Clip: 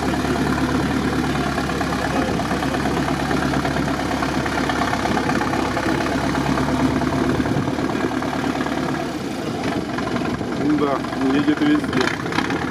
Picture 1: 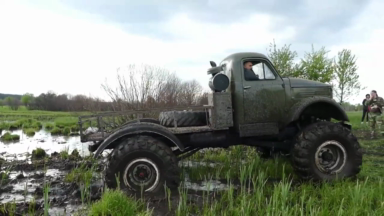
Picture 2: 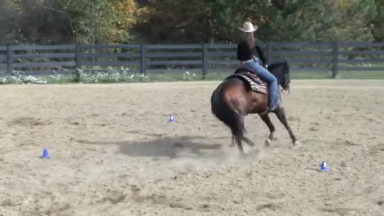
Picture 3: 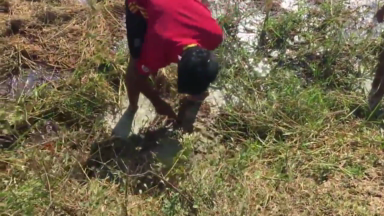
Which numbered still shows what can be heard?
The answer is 1